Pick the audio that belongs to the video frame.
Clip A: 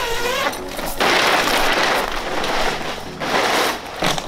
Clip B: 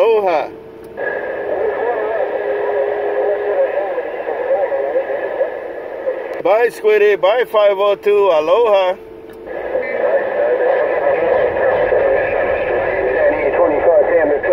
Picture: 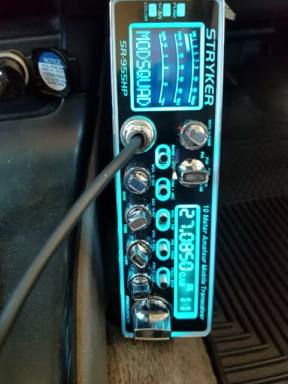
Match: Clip B